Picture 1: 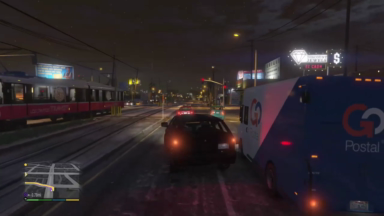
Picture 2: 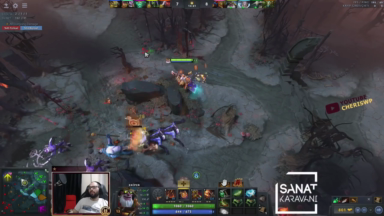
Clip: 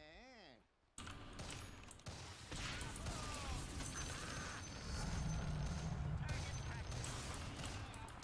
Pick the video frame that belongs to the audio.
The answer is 2